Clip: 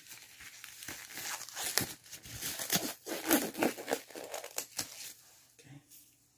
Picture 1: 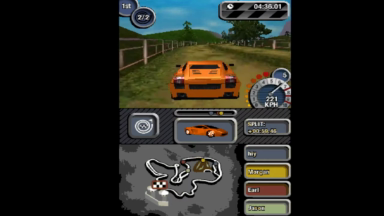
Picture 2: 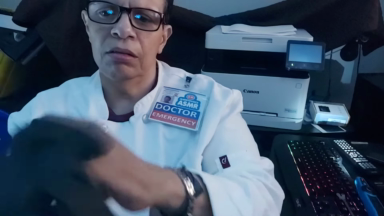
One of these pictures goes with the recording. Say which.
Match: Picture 2